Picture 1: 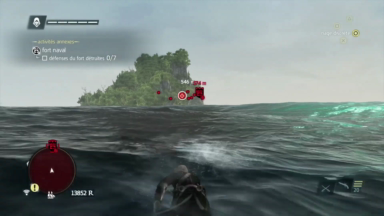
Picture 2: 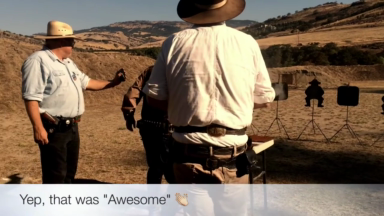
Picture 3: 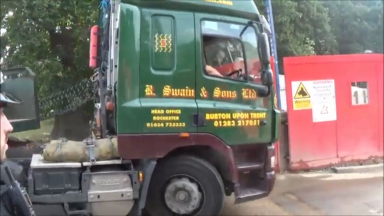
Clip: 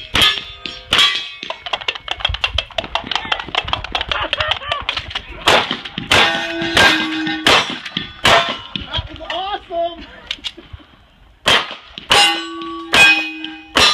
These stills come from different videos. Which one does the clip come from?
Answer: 2